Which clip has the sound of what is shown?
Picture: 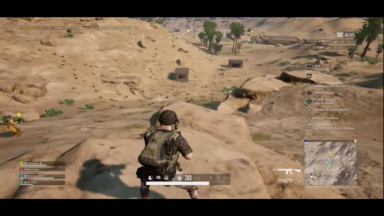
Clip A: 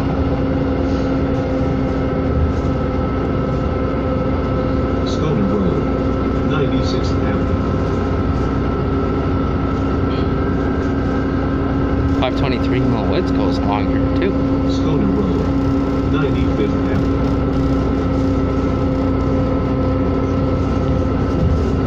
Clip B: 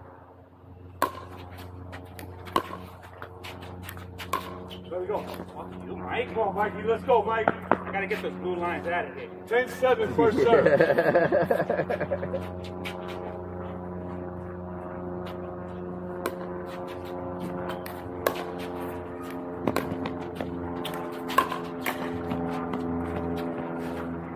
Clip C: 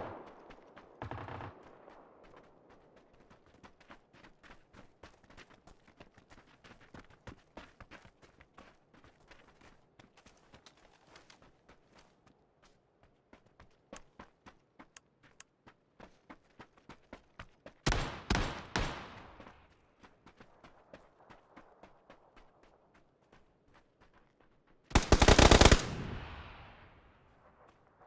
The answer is C